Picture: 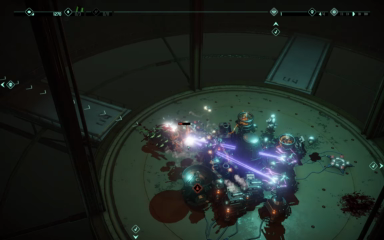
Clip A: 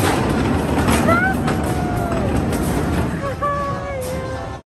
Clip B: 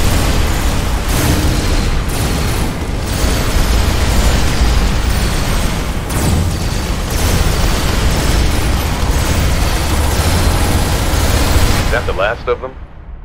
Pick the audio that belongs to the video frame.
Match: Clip B